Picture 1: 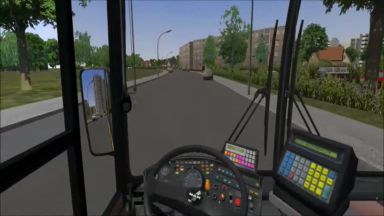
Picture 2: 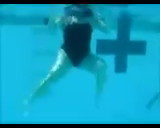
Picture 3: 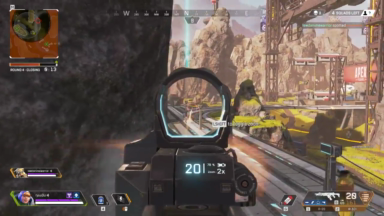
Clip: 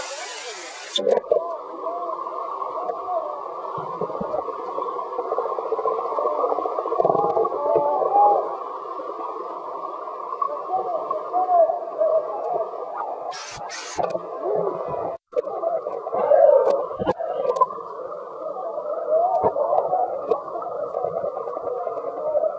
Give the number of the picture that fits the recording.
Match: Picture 2